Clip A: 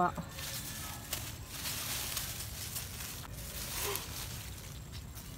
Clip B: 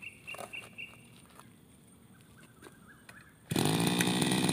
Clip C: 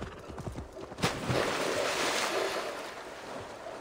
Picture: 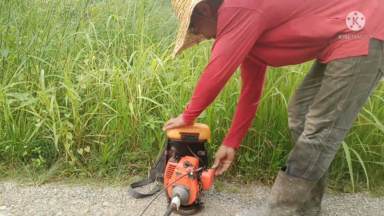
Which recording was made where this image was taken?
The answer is B